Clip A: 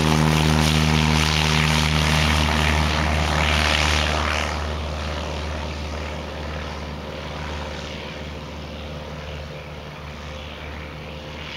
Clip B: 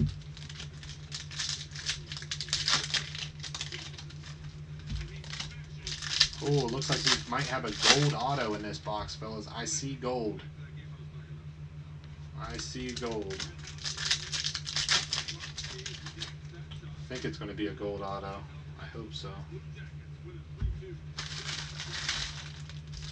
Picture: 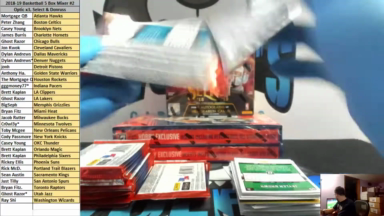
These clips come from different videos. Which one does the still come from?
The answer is B